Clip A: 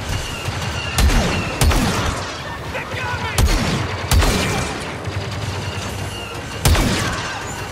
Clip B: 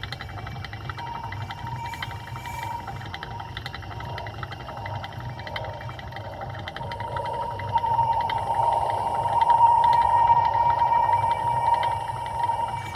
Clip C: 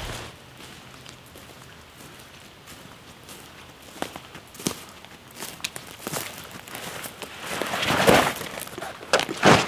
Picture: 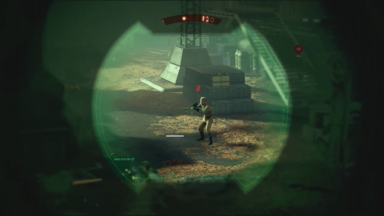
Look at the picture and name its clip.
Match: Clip A